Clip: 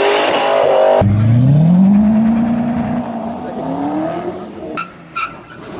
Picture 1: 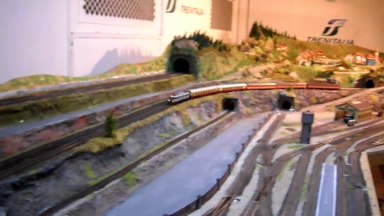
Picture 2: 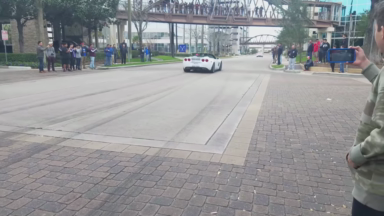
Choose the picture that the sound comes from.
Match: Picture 2